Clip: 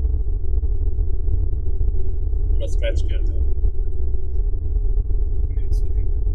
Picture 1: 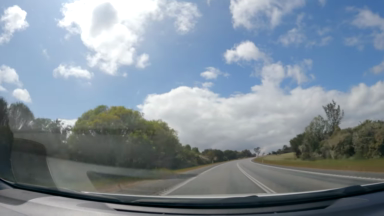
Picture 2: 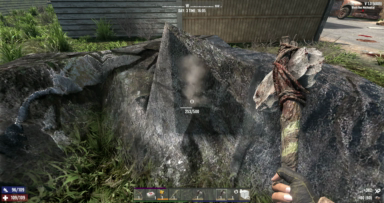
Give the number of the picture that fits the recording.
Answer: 1